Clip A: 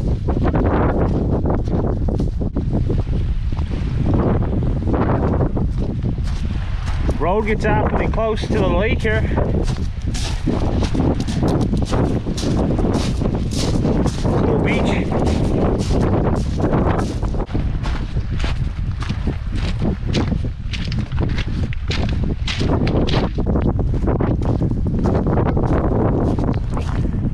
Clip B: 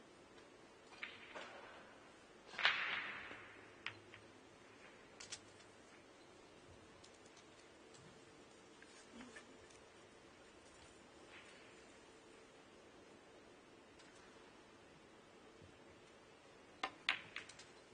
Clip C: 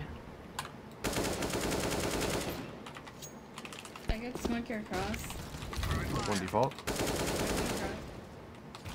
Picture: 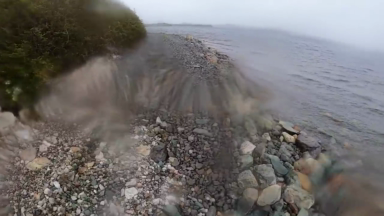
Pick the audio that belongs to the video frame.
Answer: A